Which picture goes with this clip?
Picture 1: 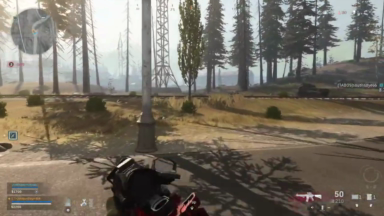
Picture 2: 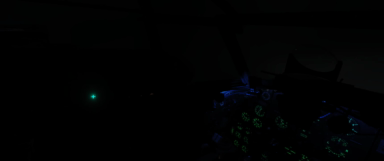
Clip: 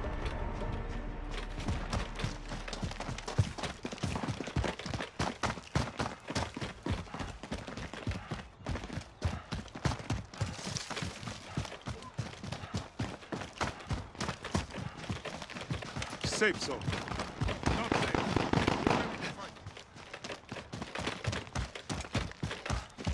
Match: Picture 1